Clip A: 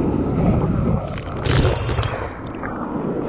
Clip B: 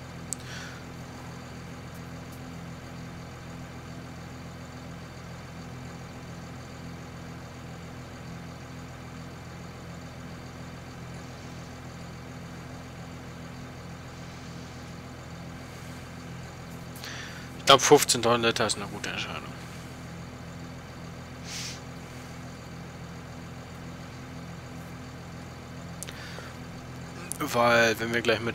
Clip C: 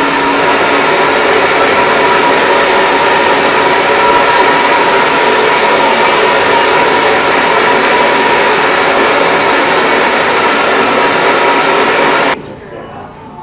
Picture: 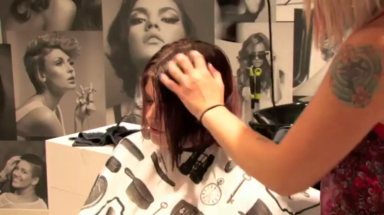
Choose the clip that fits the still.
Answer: C